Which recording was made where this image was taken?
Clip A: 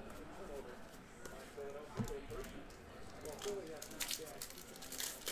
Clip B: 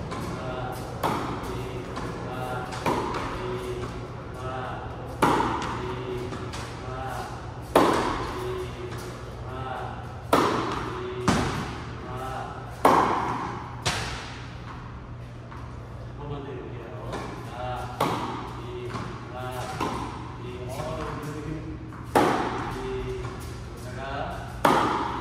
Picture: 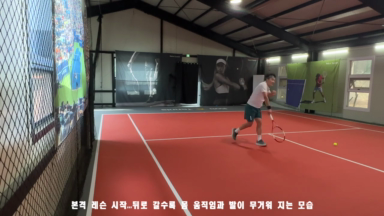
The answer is B